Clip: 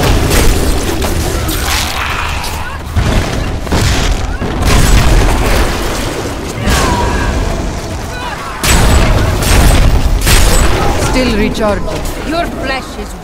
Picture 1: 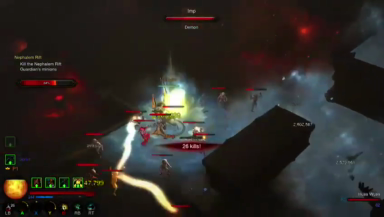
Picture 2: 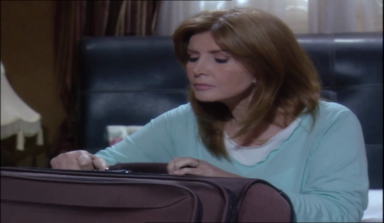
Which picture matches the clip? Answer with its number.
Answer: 1